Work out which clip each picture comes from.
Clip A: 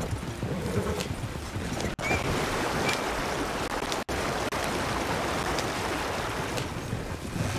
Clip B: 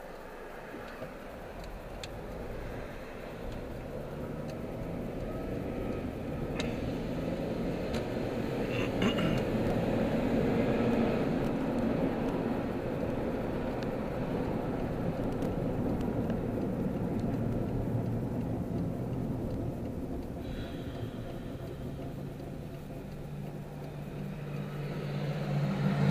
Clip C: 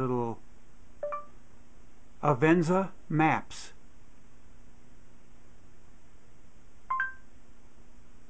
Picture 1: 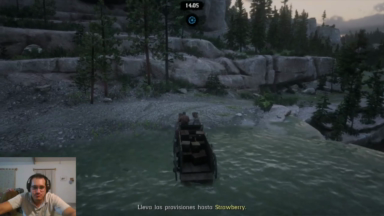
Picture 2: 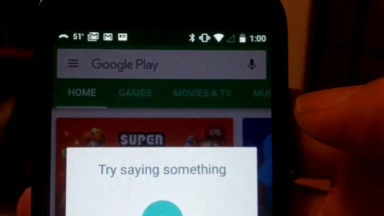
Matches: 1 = A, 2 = C